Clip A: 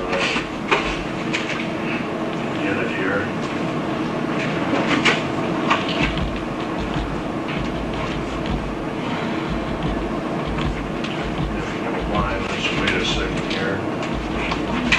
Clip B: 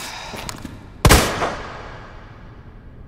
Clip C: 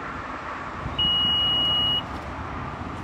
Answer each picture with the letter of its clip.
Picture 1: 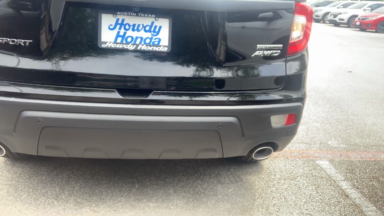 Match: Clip C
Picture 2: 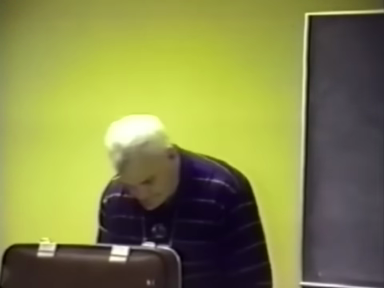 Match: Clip A